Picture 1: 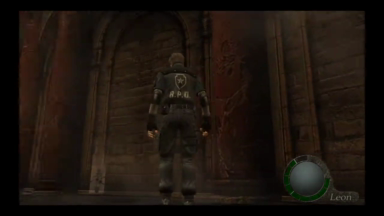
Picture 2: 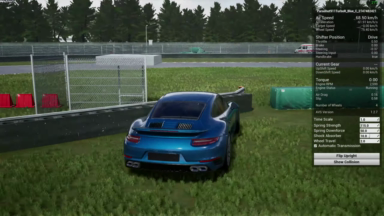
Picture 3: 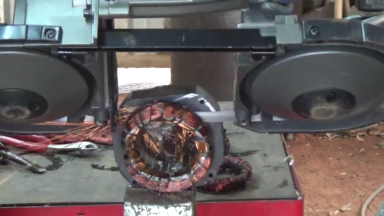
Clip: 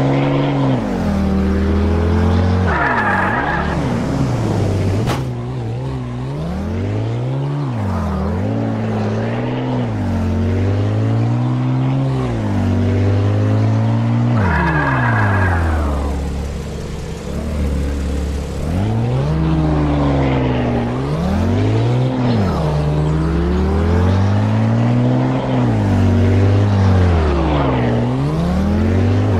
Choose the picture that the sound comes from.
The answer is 2